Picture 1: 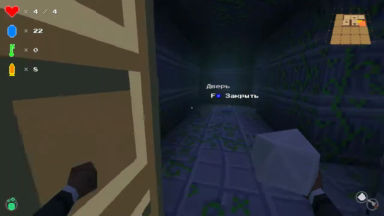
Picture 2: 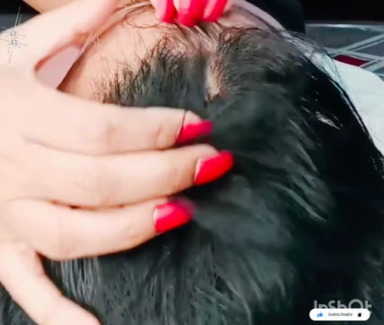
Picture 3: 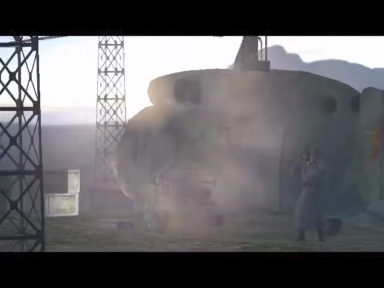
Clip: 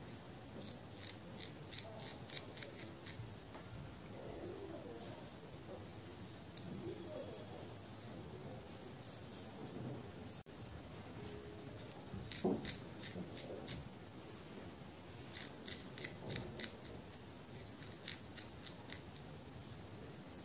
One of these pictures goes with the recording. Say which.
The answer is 2